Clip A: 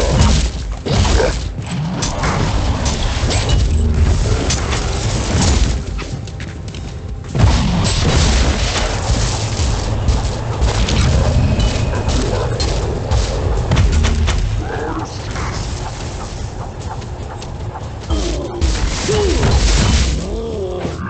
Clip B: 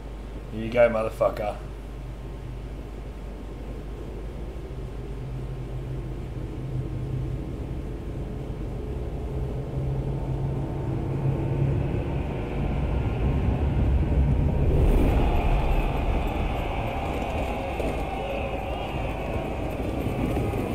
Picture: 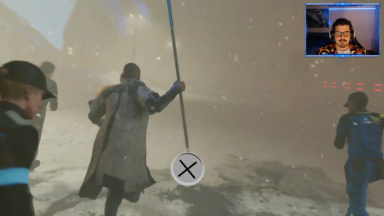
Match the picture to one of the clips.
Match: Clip B